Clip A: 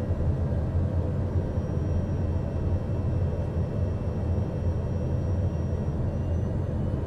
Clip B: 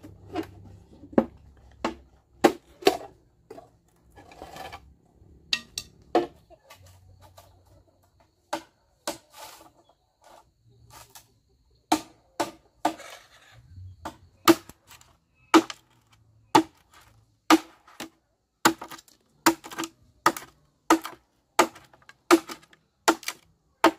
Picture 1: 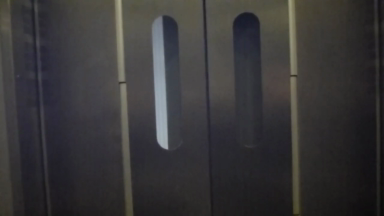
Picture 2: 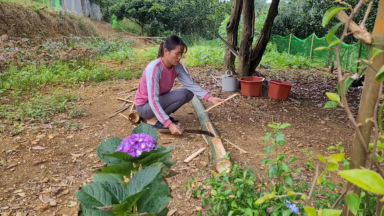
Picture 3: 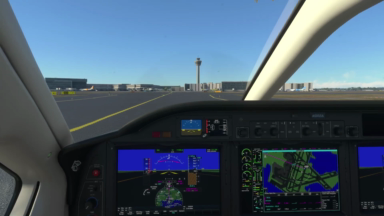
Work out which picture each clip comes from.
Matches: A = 3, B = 2